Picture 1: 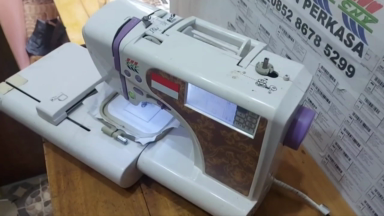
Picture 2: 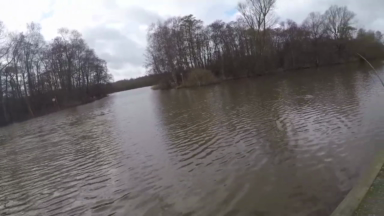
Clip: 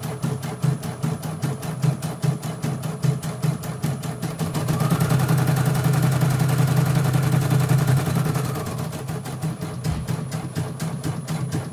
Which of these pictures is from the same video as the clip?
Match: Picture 1